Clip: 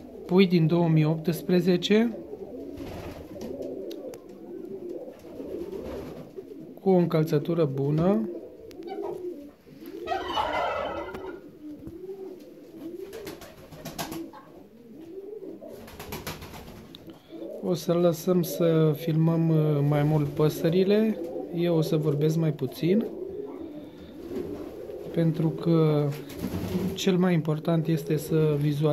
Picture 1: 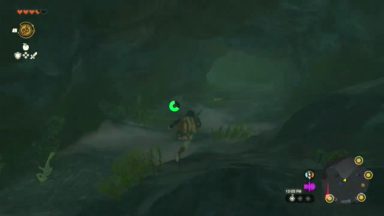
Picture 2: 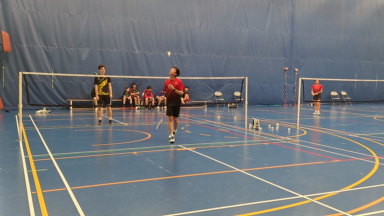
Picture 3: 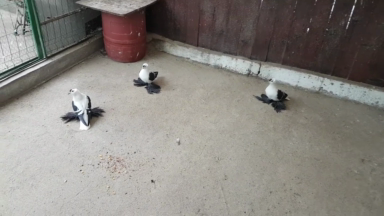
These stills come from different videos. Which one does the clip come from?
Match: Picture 3